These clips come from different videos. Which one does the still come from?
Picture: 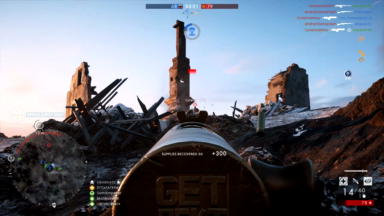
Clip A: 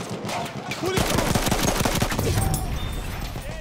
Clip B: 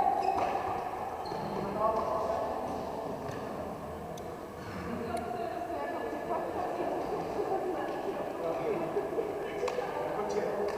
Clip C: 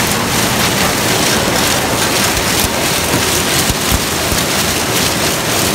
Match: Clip A